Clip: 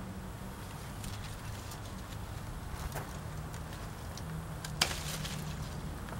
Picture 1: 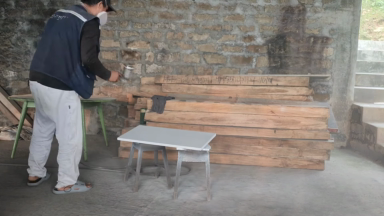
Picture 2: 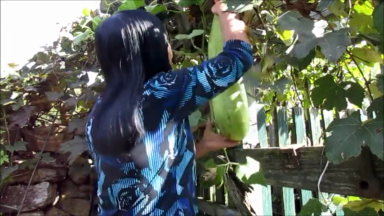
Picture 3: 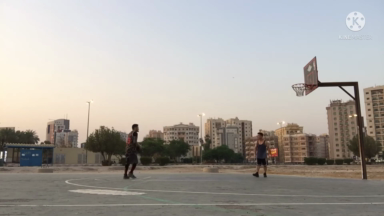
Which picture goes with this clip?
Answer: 2